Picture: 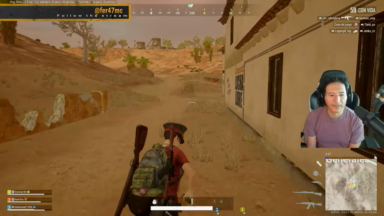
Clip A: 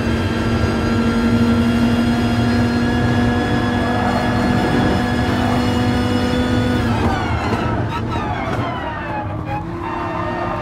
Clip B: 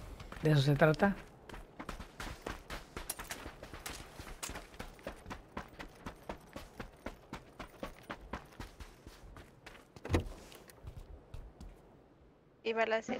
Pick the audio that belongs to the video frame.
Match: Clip B